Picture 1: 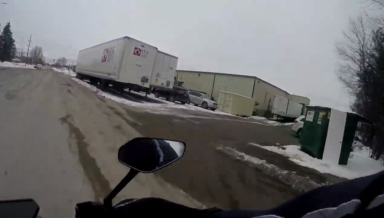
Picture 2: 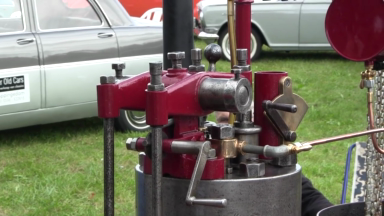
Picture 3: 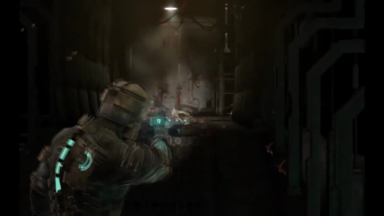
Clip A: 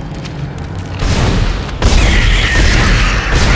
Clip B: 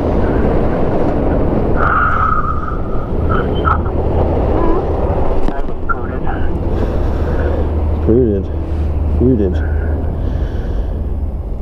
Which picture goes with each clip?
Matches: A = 3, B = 1